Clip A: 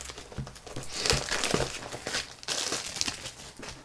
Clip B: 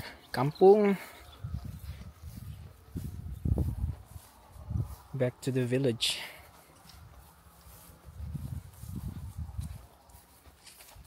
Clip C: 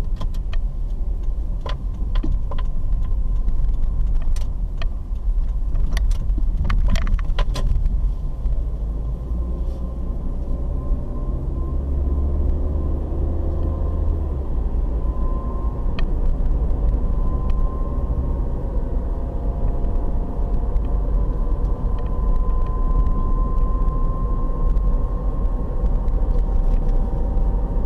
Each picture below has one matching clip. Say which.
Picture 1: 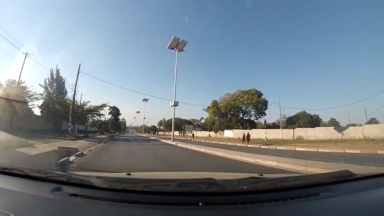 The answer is C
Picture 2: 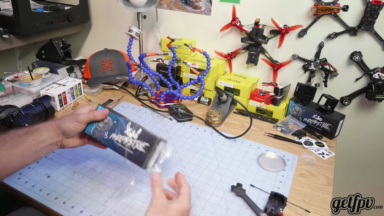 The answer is A